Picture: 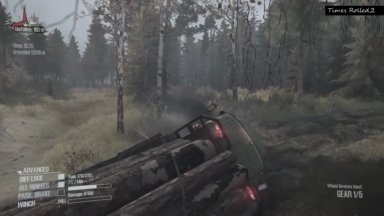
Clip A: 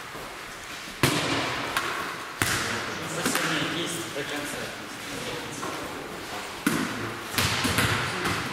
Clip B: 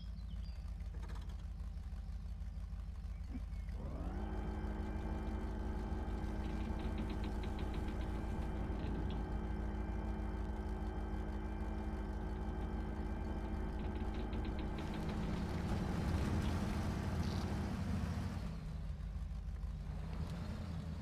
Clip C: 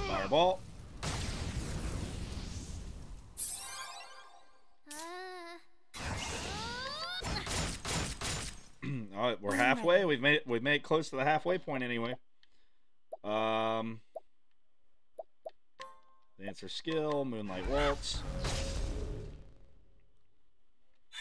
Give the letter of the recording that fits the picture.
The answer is B